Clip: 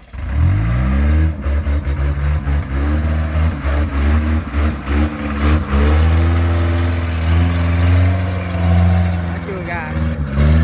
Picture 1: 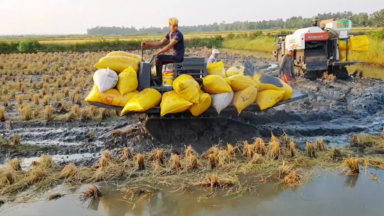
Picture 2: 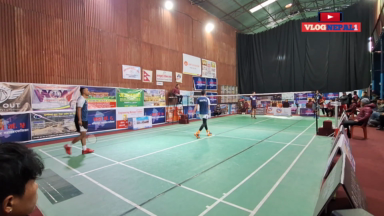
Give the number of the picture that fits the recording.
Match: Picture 1